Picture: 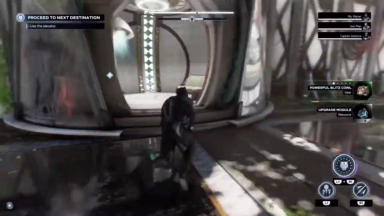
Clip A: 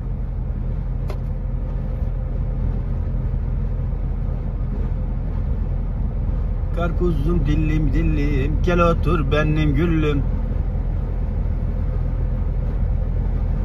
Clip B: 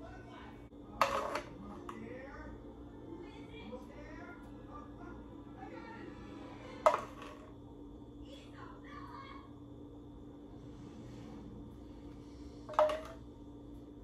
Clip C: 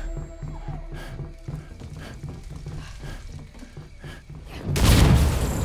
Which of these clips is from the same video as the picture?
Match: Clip C